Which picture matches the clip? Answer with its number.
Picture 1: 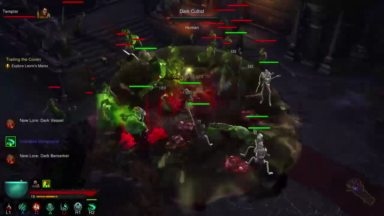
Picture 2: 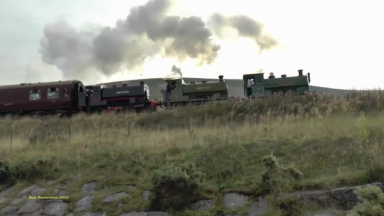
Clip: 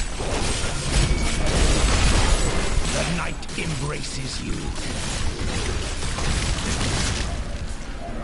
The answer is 1